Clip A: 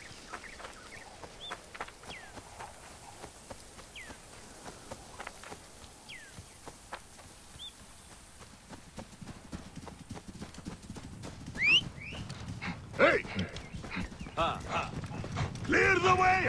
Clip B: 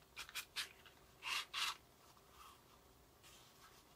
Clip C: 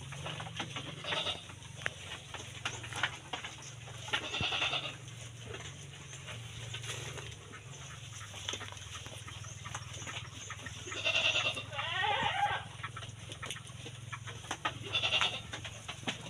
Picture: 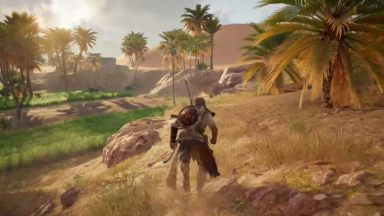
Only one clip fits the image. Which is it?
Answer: A